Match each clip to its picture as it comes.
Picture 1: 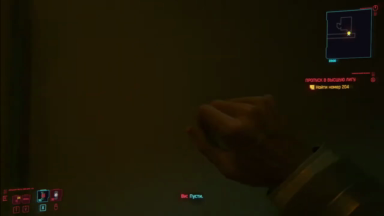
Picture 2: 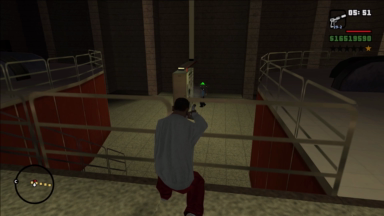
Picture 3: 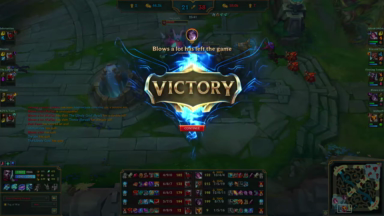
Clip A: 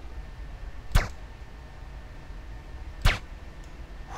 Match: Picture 2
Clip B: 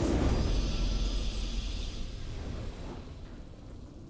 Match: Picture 3